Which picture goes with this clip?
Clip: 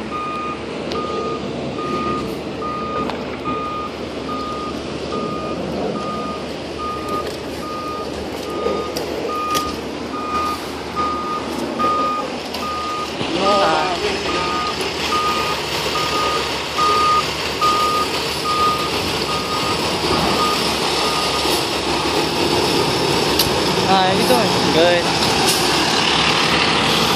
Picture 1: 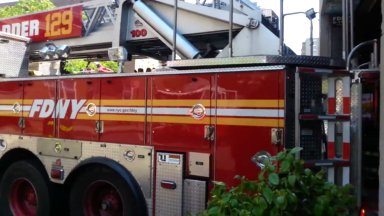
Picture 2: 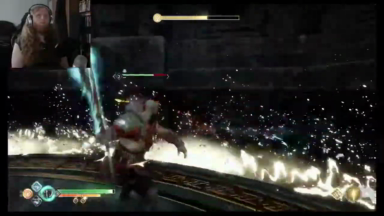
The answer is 1